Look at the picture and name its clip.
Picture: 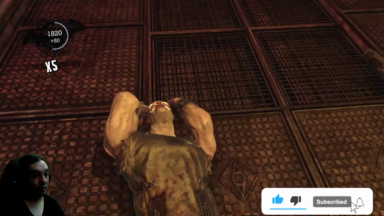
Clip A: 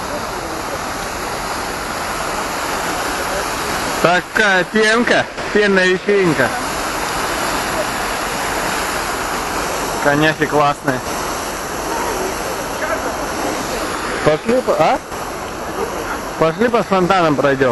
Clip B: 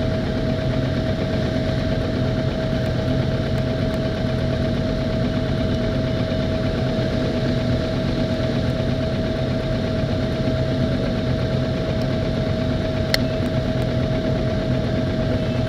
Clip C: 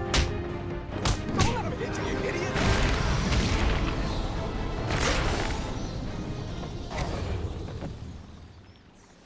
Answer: C